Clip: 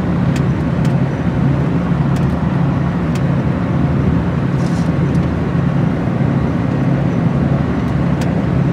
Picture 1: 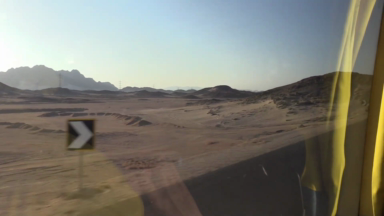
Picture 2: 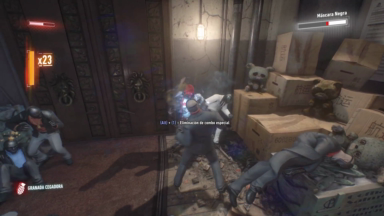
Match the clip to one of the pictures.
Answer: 1